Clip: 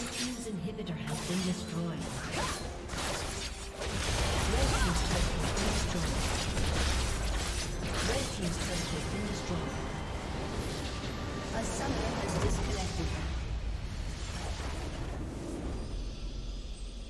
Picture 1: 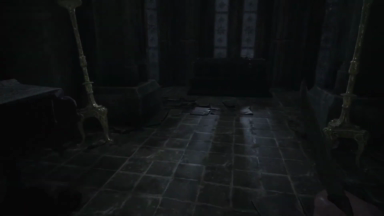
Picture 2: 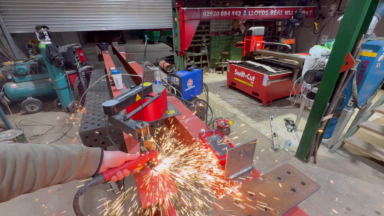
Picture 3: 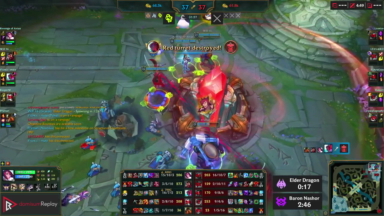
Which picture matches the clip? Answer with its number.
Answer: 3